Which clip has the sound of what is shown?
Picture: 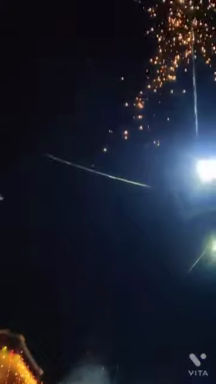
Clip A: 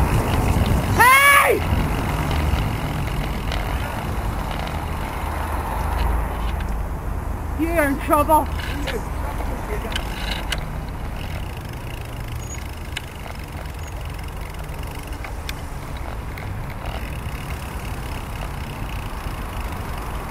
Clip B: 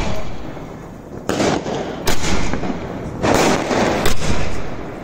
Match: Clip B